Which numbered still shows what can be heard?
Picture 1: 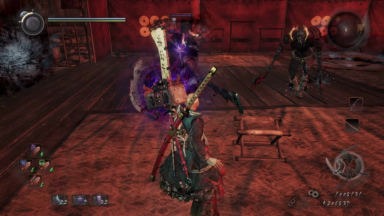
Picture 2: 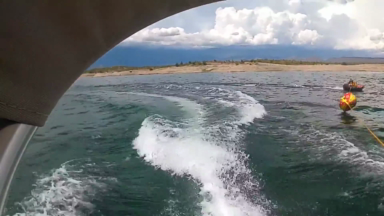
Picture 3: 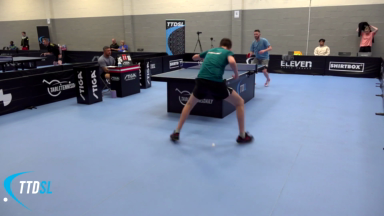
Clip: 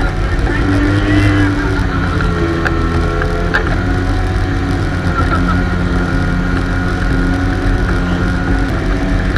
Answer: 2